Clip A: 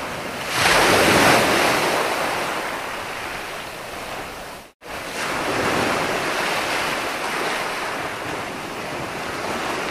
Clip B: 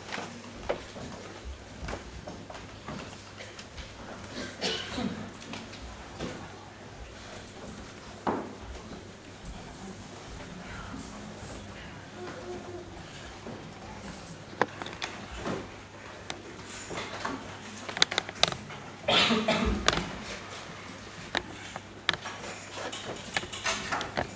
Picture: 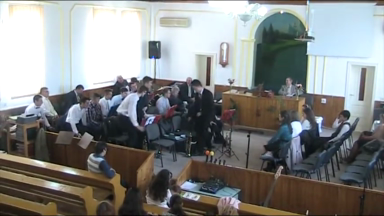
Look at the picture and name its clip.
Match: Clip B